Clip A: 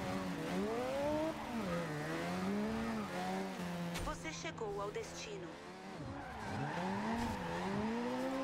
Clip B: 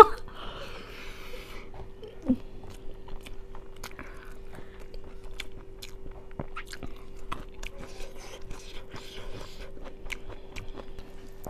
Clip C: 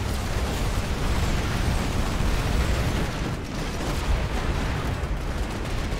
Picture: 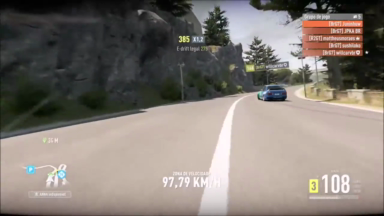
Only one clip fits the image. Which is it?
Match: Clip A